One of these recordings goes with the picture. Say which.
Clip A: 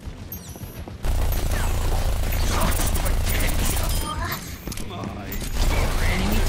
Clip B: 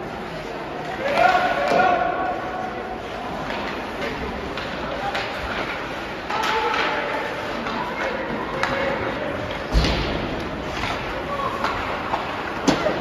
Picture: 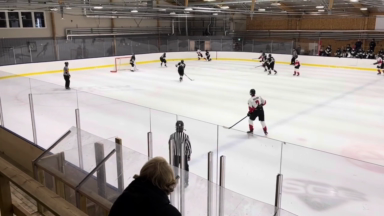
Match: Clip B